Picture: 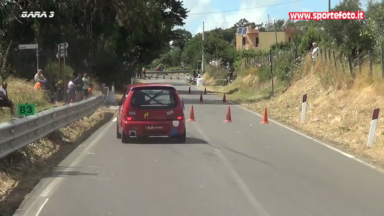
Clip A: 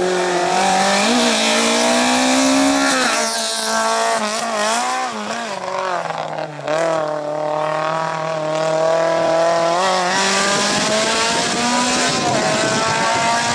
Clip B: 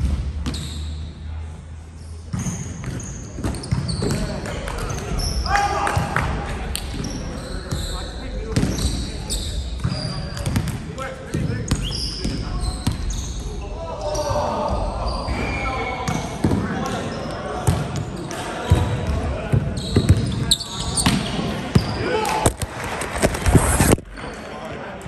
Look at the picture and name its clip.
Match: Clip A